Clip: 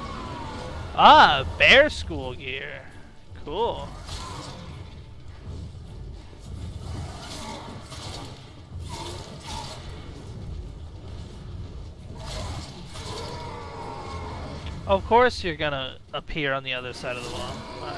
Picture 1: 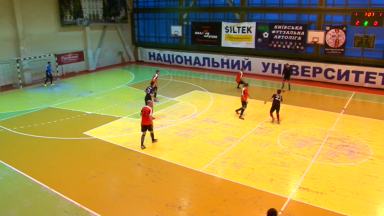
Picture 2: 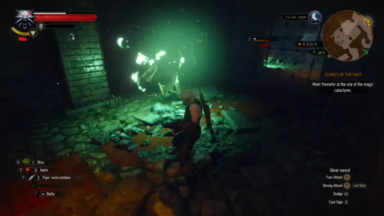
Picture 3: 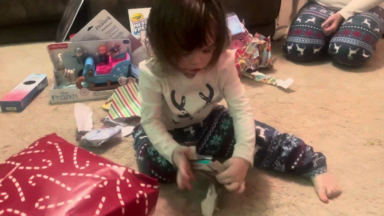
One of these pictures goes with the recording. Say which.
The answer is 2